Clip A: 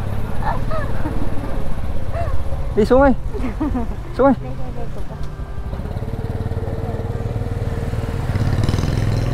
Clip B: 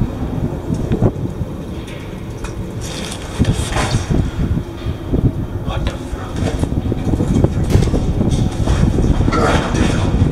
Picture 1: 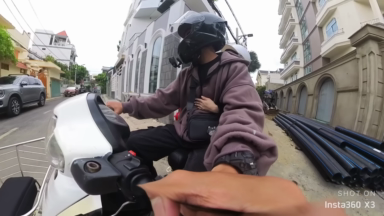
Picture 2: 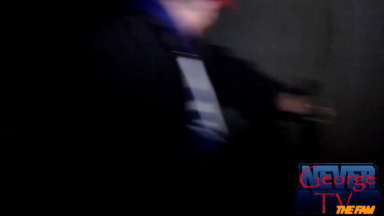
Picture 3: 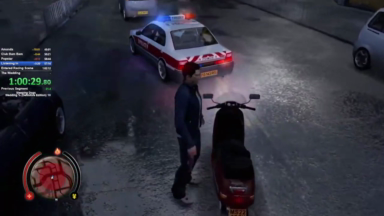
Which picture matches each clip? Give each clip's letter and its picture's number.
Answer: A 1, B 2